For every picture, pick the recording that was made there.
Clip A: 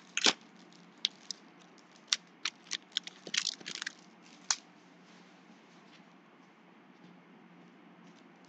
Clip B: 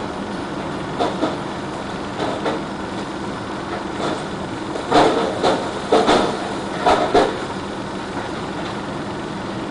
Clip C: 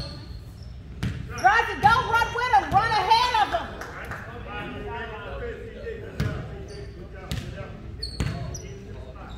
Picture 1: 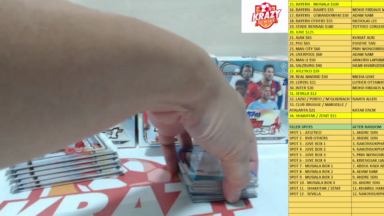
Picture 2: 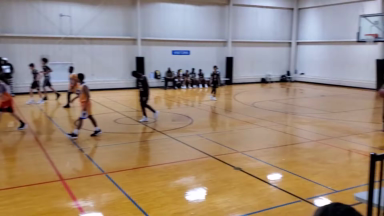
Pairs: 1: A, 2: C